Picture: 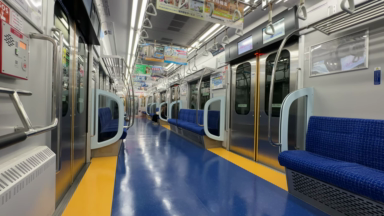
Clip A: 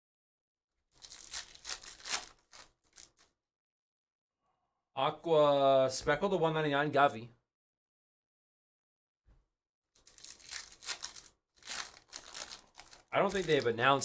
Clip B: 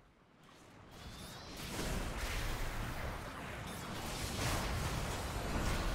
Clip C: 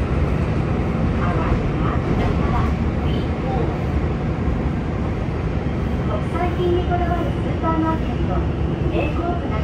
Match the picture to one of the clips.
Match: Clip C